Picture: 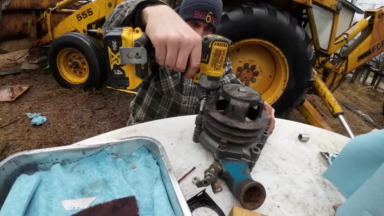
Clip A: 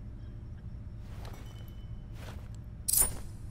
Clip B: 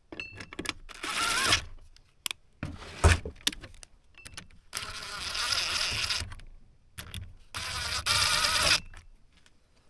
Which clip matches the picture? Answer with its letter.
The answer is B